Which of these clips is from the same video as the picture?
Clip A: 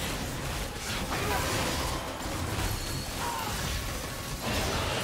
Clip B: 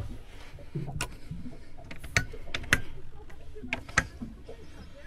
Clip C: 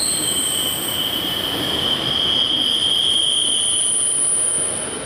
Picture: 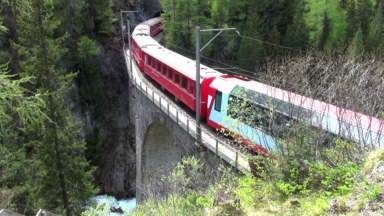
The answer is C